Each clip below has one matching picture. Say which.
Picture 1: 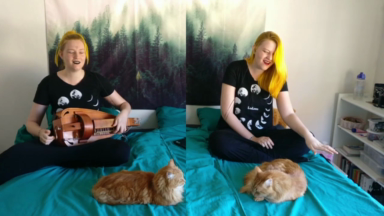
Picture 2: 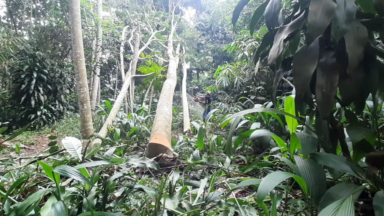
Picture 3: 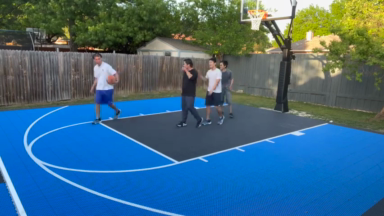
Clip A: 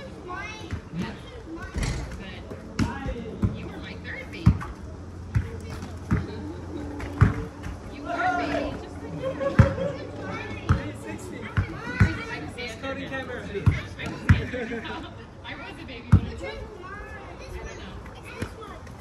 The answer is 3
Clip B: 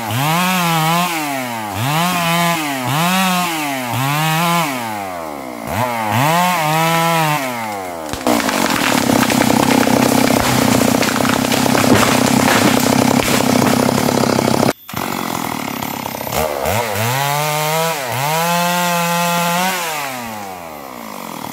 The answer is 2